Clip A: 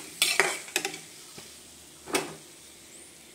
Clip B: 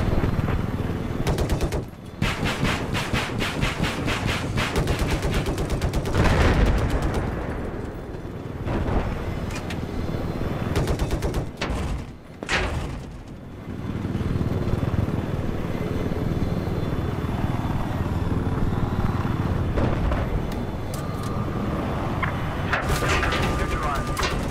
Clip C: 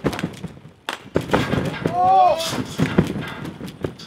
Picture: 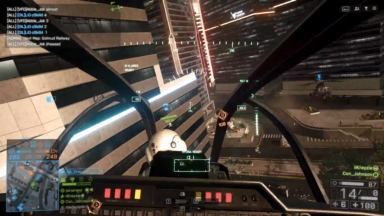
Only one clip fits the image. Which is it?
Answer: B